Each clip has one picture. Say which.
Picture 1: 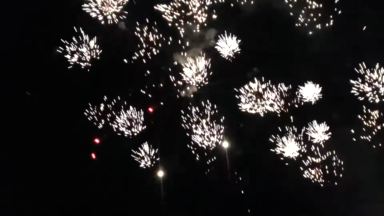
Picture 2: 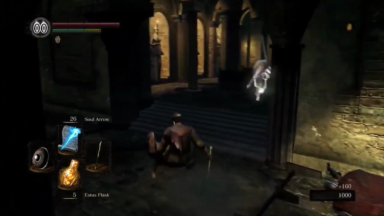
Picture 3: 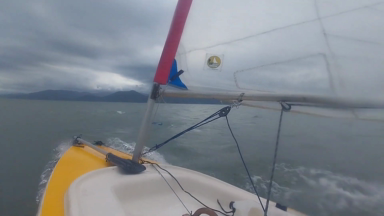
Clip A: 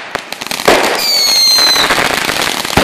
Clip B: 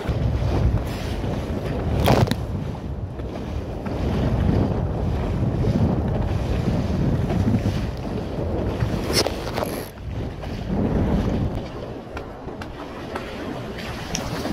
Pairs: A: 1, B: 3